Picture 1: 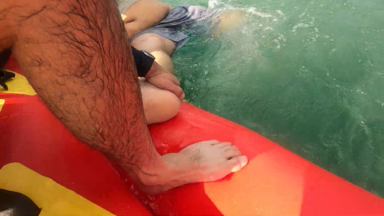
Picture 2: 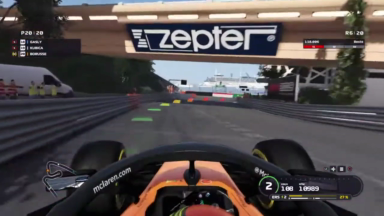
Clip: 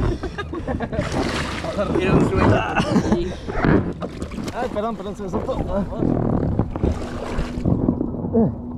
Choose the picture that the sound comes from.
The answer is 1